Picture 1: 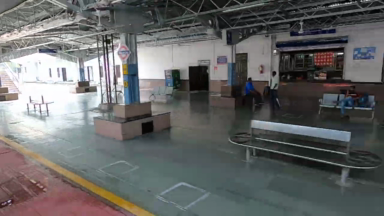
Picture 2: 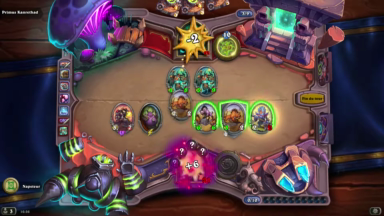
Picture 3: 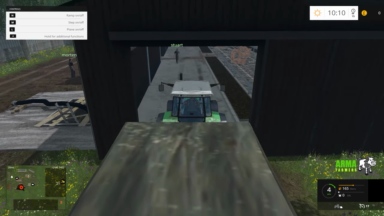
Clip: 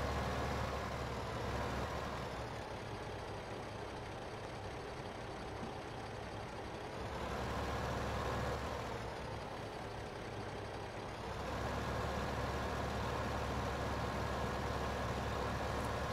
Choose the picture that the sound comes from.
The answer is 3